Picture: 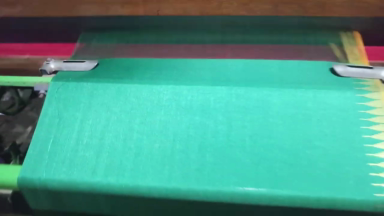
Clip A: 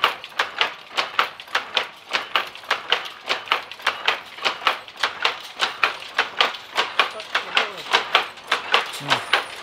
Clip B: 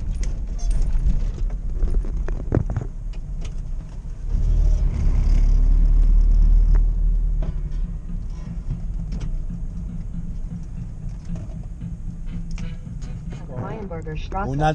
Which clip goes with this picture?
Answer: A